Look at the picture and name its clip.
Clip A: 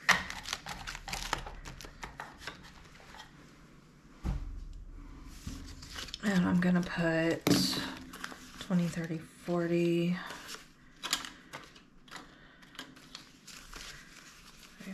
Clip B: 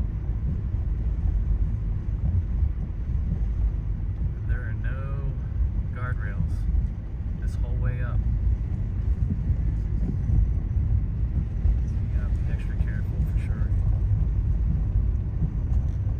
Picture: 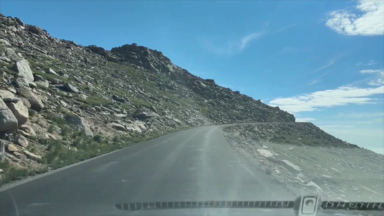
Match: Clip B